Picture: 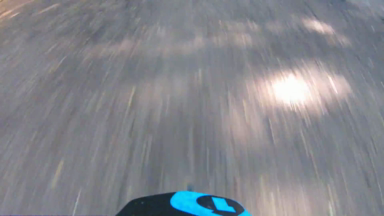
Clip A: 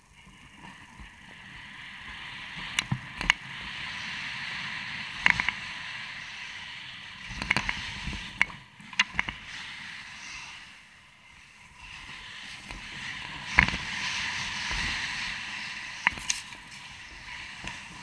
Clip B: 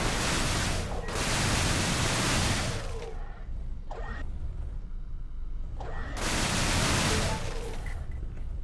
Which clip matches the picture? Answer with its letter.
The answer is A